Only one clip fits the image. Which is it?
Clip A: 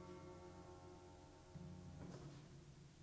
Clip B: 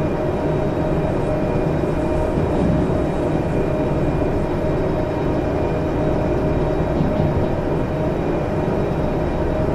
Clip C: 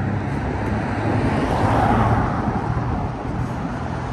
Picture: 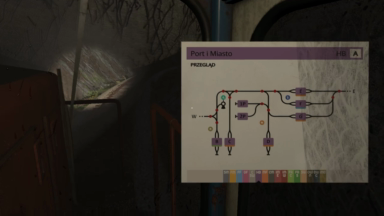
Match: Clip B